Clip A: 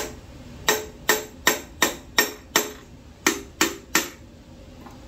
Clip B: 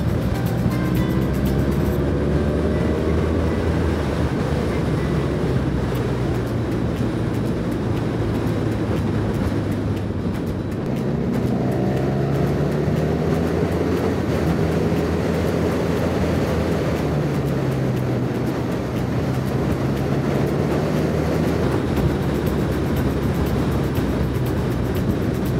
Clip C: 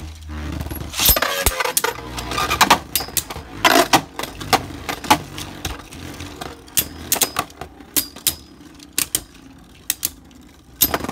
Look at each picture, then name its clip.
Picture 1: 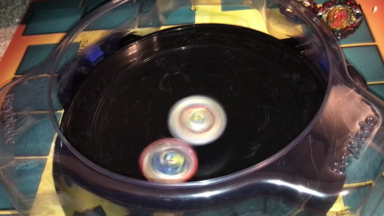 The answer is C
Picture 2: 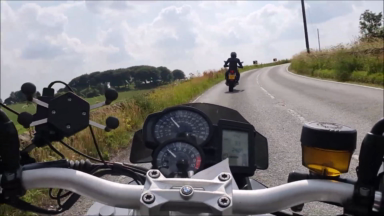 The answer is B